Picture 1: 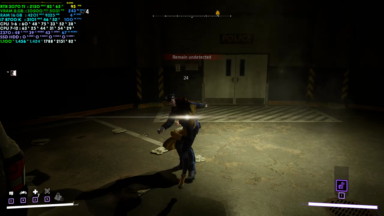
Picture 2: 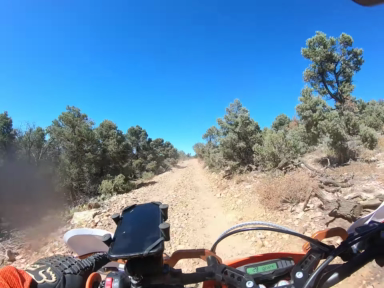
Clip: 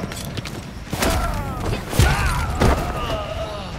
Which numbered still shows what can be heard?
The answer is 1